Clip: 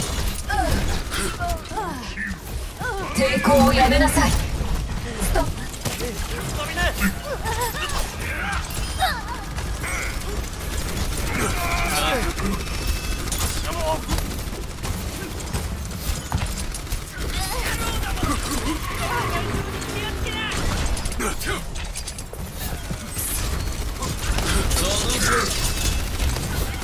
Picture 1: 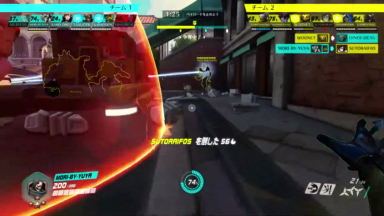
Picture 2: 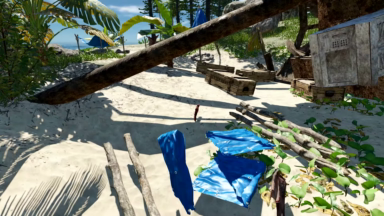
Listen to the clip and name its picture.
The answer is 1